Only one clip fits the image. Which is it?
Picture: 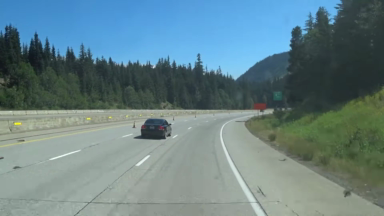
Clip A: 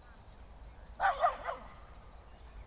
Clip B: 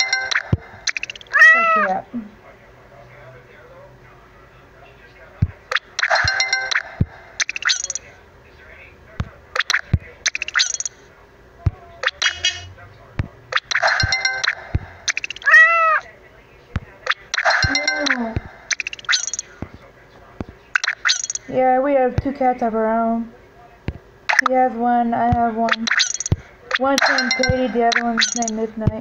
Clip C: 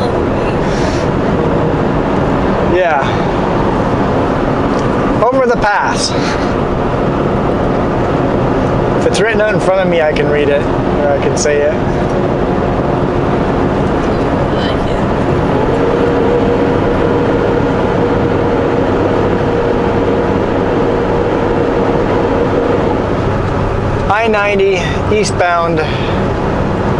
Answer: C